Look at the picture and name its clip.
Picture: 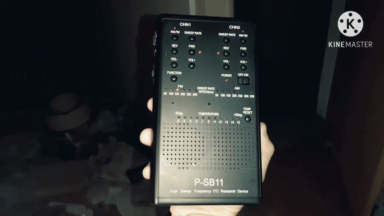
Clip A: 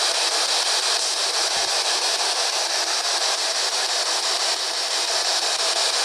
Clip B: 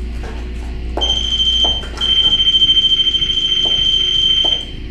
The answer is A